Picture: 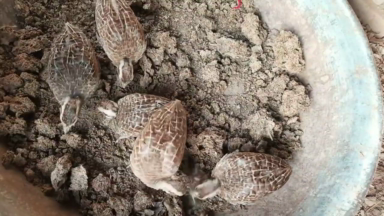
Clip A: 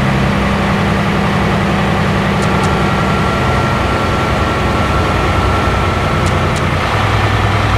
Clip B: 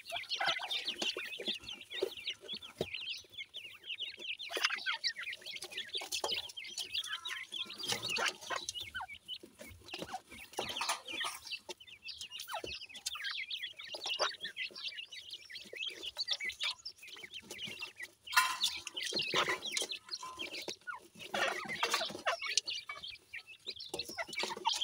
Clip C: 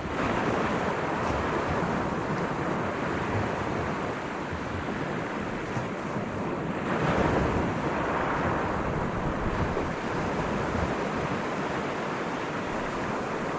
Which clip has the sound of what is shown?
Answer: B